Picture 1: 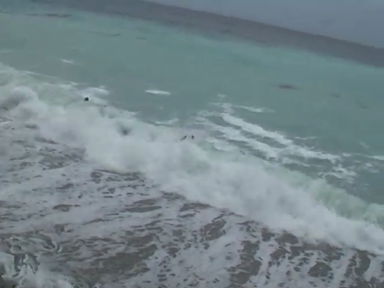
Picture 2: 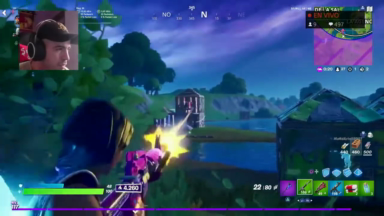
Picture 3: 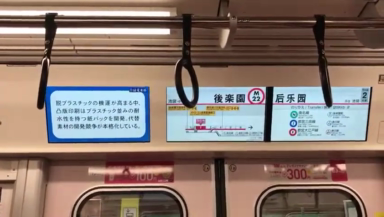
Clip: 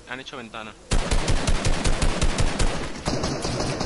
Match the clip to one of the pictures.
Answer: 2